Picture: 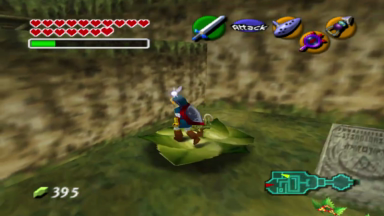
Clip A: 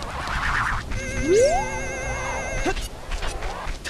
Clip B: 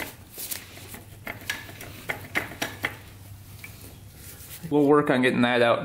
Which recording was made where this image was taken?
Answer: A